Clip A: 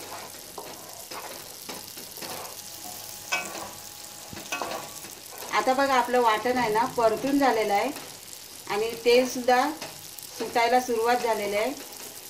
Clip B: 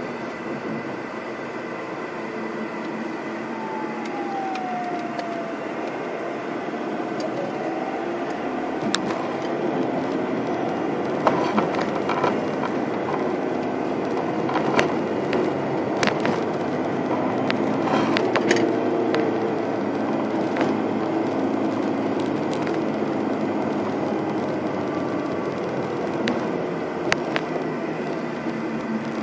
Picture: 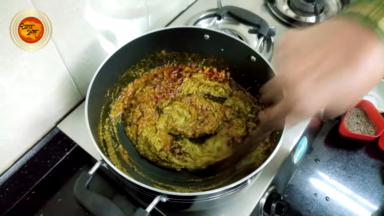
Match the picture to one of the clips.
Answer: A